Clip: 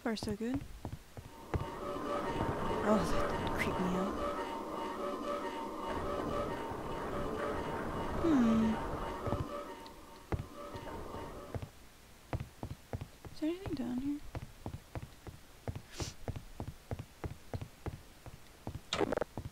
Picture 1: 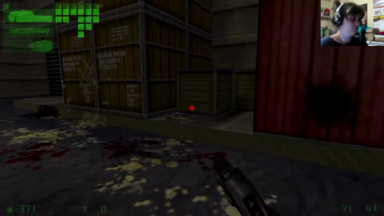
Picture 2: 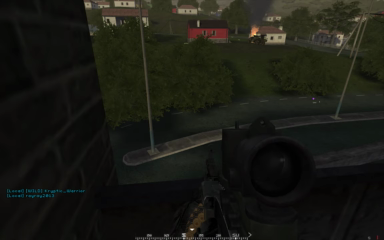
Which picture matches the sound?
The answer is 1